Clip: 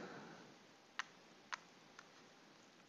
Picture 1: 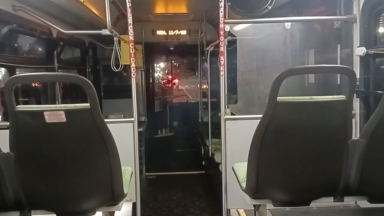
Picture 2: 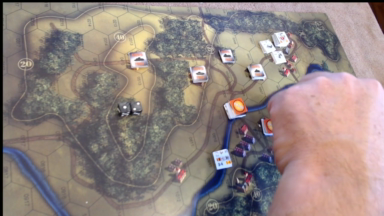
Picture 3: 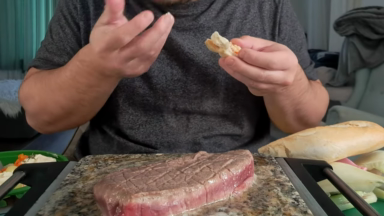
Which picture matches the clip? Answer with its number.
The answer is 2